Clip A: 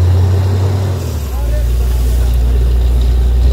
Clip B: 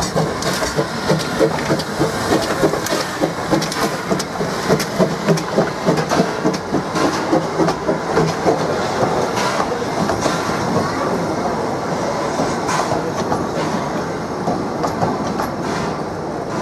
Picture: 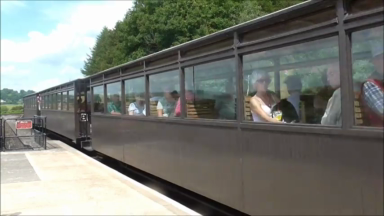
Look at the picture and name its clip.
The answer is B